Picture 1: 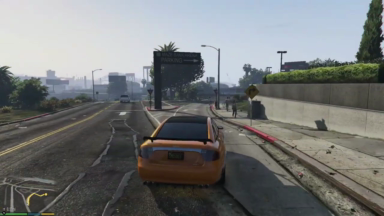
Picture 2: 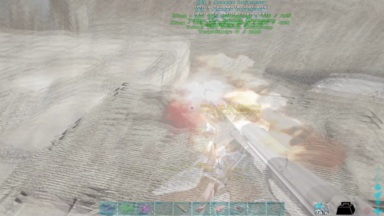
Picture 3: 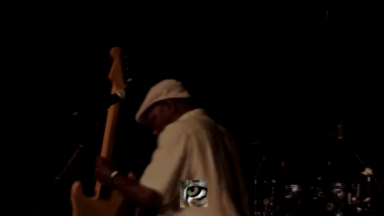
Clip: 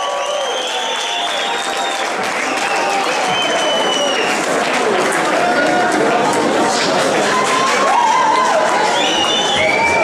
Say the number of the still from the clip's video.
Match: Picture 3